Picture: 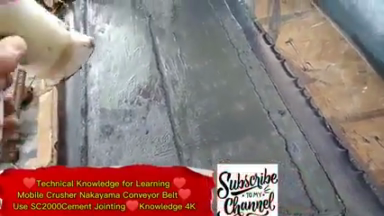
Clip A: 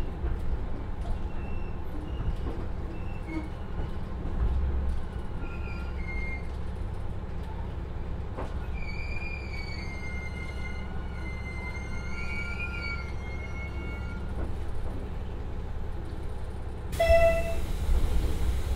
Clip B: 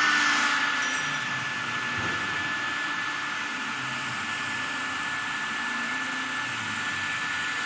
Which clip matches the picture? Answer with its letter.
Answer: B